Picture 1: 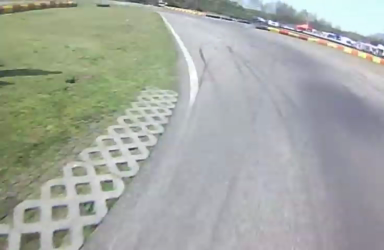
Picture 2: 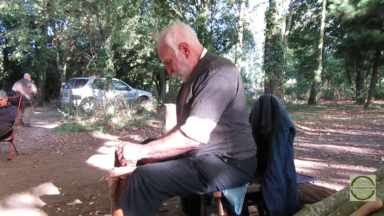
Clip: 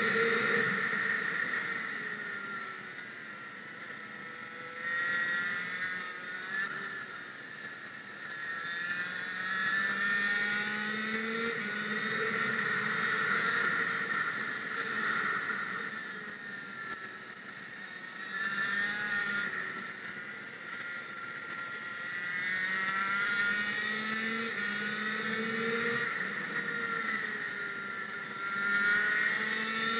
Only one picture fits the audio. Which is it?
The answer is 1